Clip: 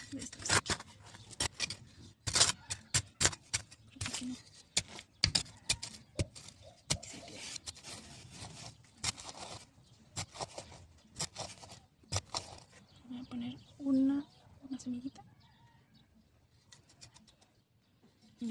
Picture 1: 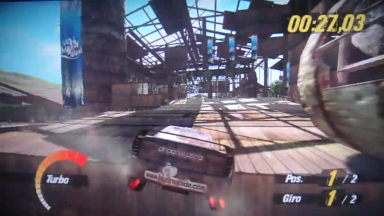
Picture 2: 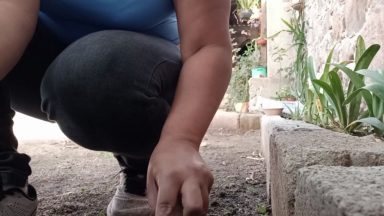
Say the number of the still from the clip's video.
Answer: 2